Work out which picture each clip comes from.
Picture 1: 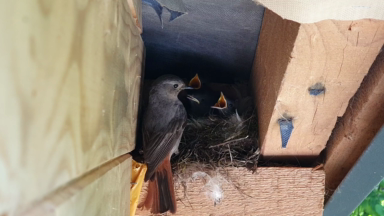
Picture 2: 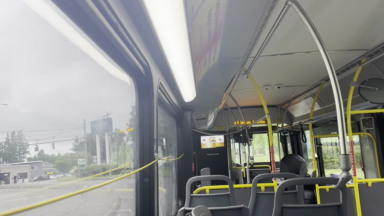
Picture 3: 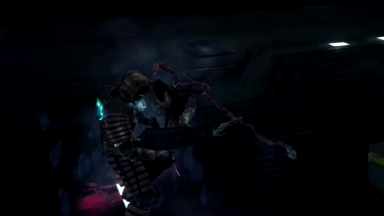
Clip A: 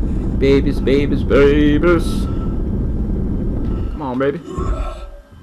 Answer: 3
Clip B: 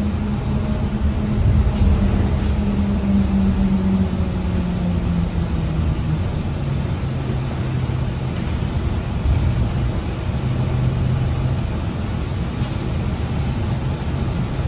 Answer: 2